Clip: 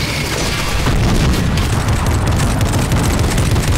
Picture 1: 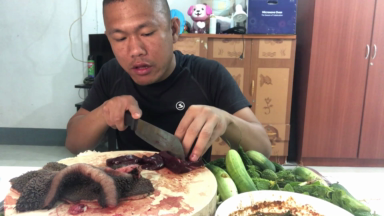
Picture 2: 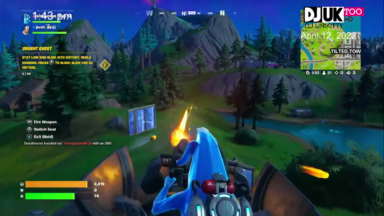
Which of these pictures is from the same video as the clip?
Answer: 2